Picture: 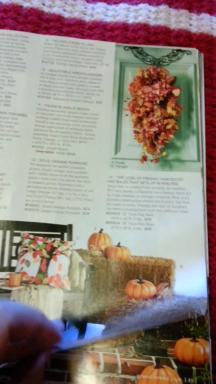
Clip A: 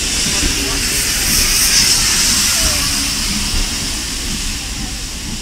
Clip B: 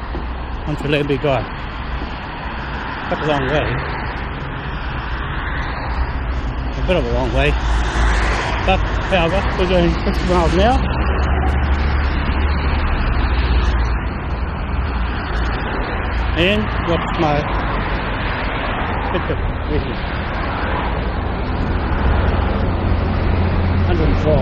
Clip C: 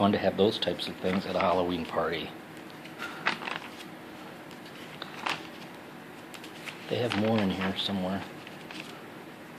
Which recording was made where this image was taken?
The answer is C